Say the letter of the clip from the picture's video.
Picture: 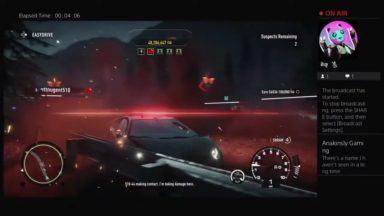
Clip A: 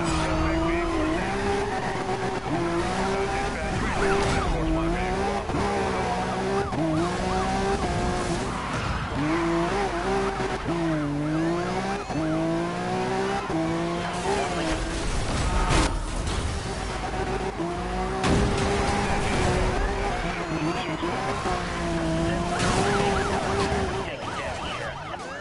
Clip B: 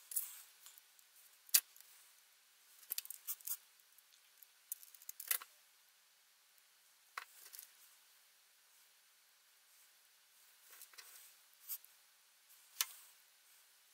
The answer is A